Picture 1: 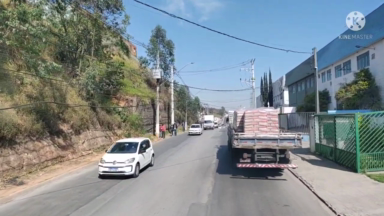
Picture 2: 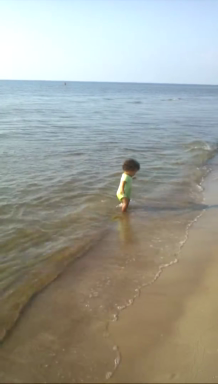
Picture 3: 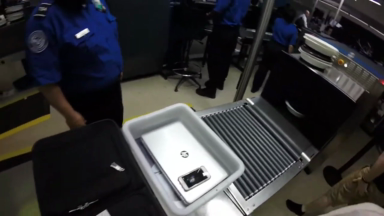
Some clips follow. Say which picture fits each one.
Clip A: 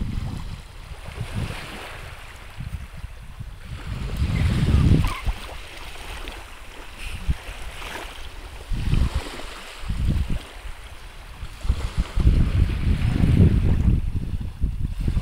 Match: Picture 2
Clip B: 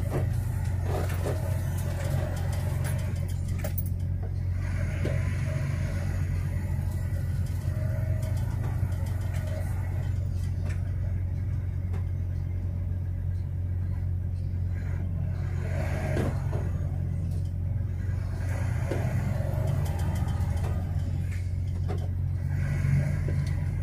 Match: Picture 1